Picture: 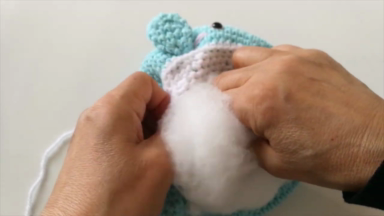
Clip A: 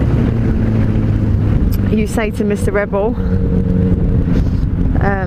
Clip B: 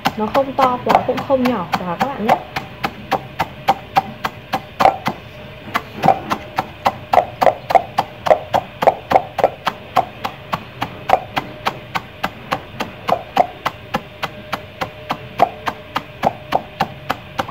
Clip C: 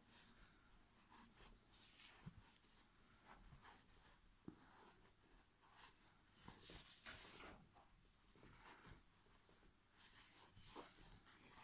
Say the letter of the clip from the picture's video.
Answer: C